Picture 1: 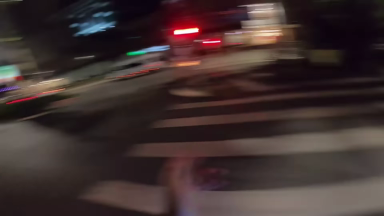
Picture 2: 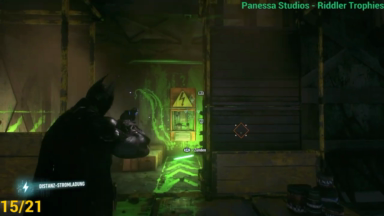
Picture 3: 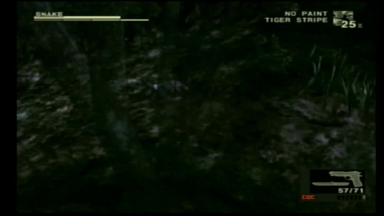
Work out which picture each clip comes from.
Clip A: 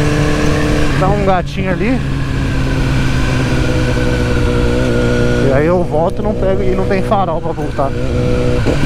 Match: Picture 1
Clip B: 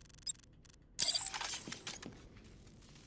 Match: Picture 2